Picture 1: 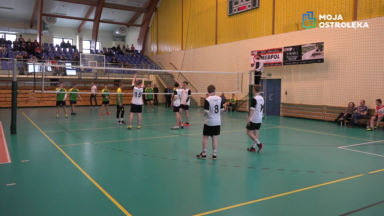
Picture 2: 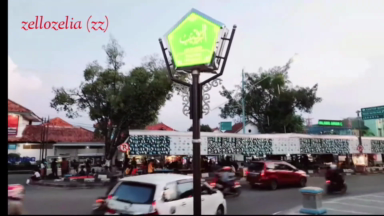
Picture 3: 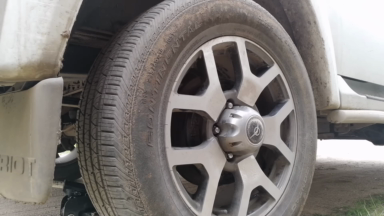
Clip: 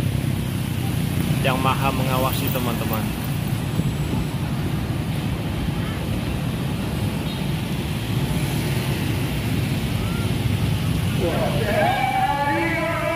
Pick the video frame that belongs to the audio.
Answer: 2